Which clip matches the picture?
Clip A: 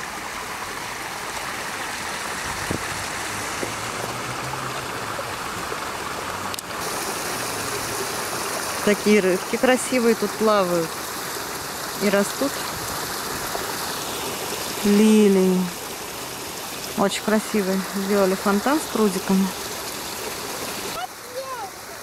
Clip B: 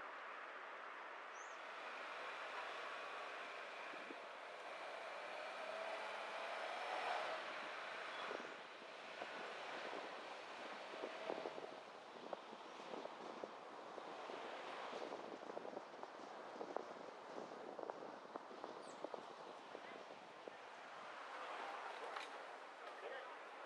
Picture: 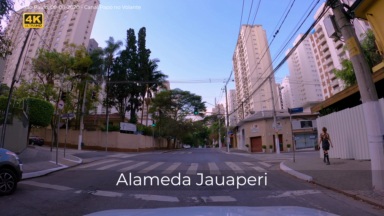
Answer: B